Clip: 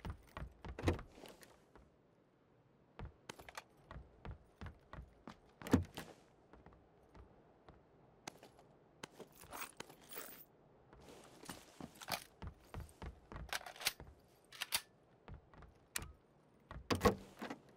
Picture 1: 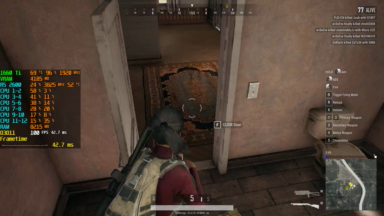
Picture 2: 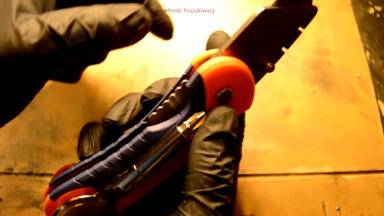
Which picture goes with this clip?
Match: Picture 1